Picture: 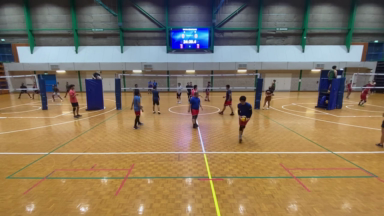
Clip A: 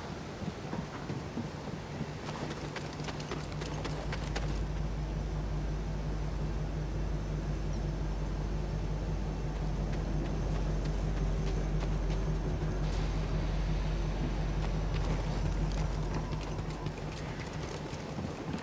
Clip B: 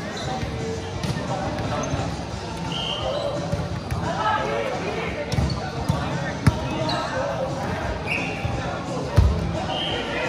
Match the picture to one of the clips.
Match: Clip B